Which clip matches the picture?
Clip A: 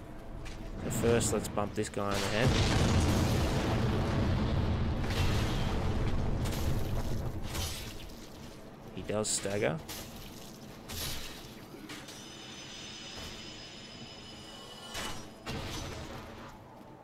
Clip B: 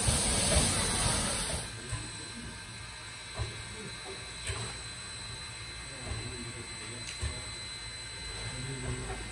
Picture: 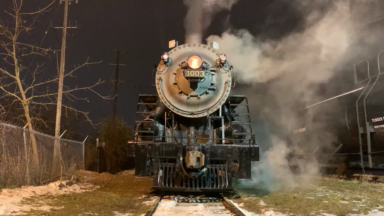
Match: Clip B